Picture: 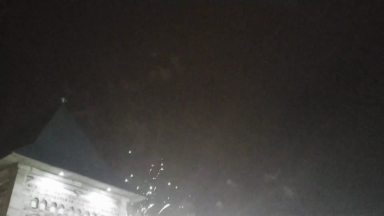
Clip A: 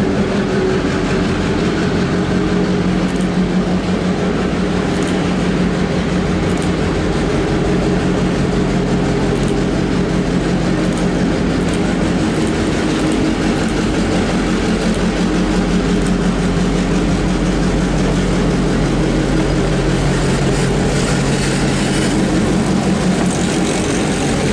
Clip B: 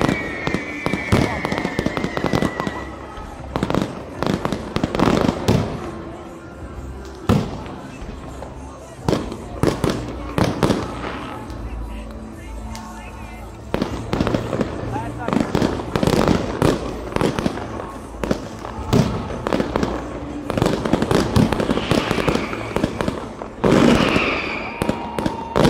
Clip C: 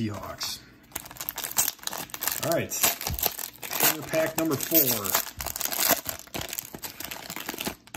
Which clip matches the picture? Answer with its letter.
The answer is B